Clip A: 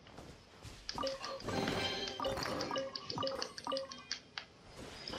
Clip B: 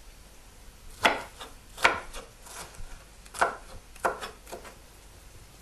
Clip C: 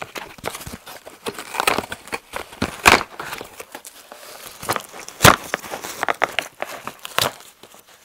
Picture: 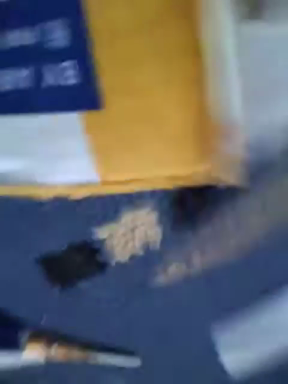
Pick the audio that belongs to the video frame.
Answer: C